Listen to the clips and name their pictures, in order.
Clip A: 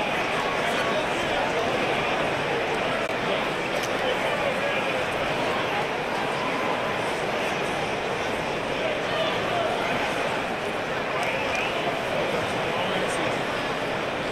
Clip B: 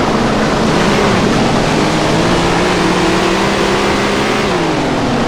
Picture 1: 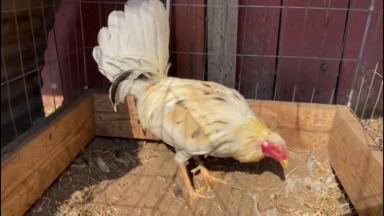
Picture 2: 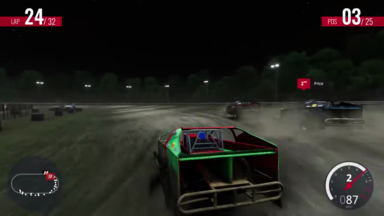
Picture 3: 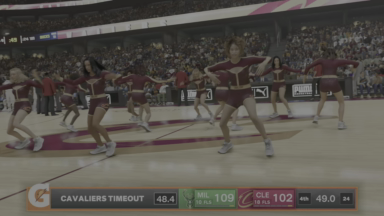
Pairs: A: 3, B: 2